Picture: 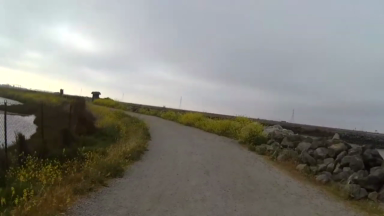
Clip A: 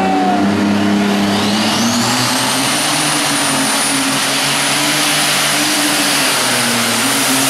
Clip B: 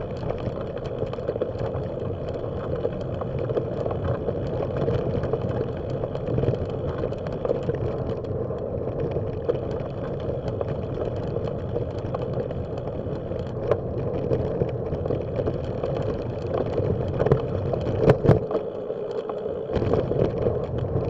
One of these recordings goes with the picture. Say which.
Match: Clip B